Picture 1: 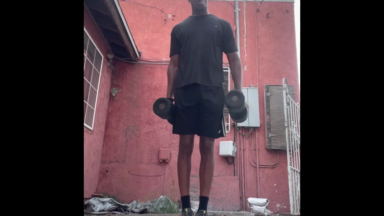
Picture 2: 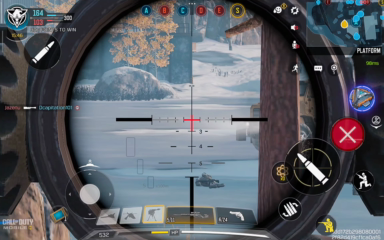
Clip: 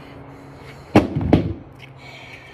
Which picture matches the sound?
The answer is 1